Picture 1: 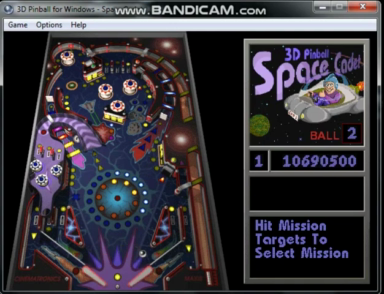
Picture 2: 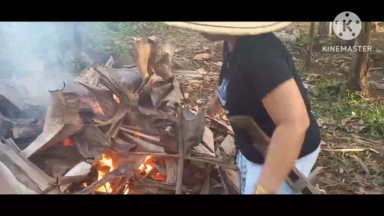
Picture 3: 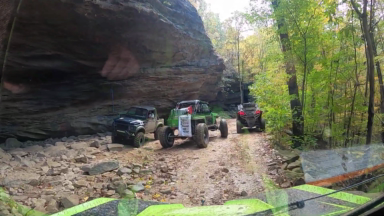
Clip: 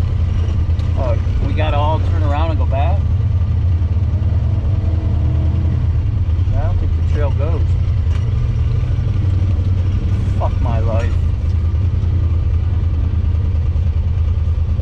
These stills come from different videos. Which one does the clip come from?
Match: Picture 3